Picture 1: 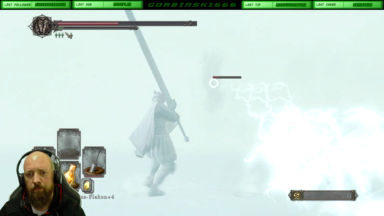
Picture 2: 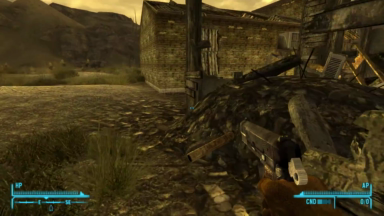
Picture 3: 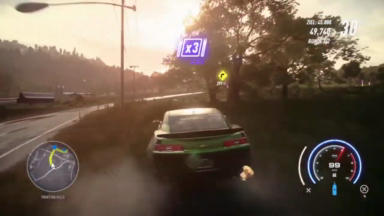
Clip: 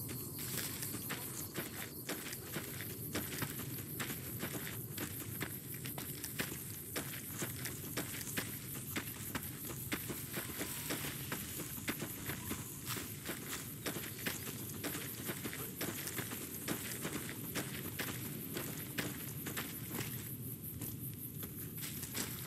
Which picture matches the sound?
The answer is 2